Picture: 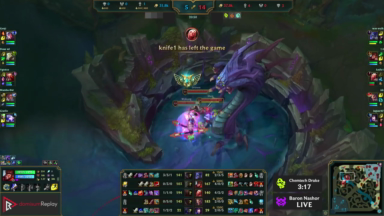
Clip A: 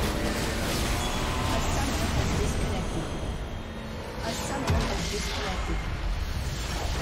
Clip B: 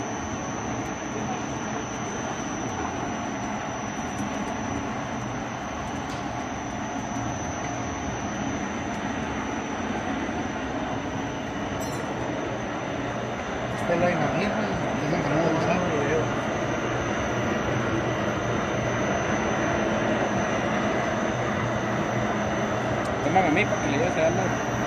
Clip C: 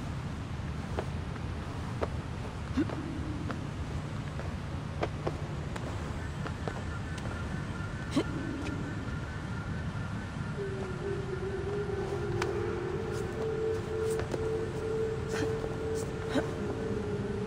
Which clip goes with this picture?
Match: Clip A